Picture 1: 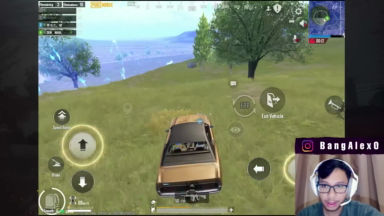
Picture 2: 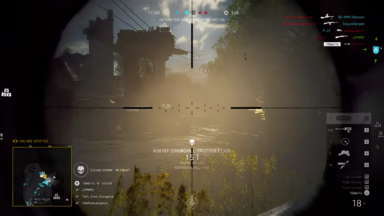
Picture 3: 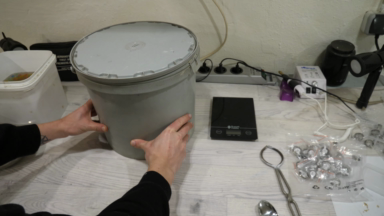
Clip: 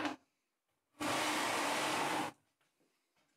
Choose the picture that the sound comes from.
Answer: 3